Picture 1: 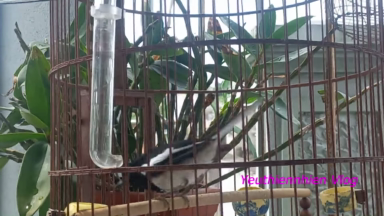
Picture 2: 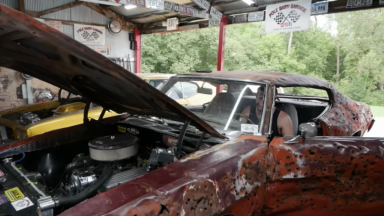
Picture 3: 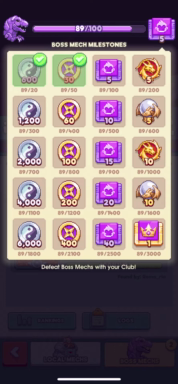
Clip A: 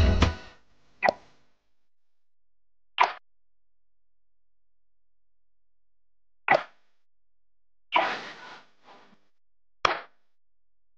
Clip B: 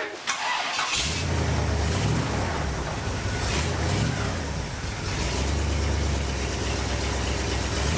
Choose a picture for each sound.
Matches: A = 3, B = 2